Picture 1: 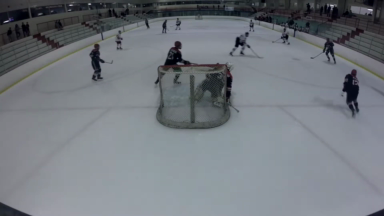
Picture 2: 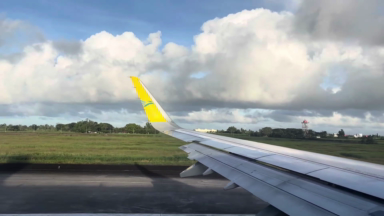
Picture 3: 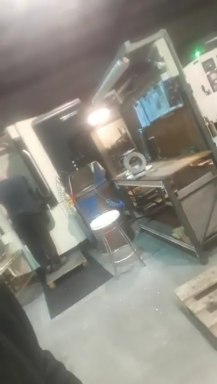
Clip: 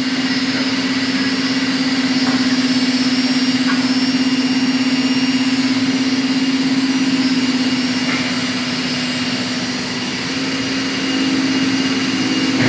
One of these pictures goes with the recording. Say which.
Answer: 3